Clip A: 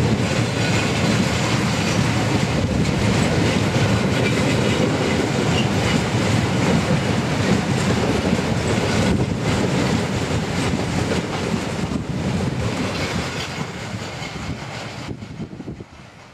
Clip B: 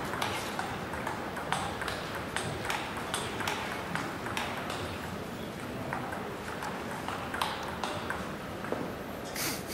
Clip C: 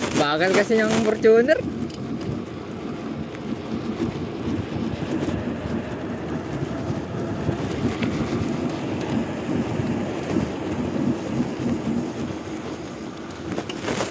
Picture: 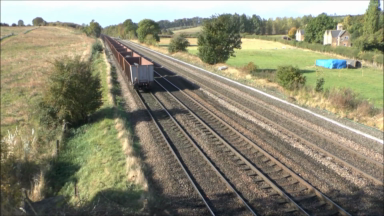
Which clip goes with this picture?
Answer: A